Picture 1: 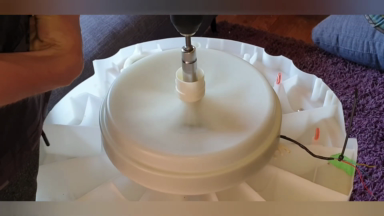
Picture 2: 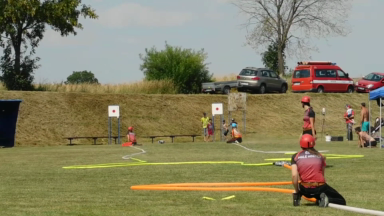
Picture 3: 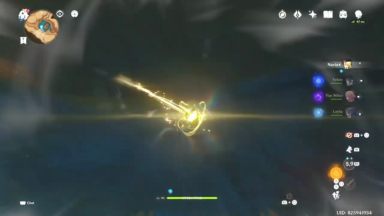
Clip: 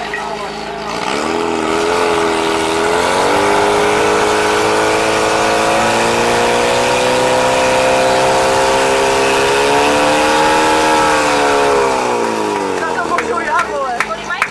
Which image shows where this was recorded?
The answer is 2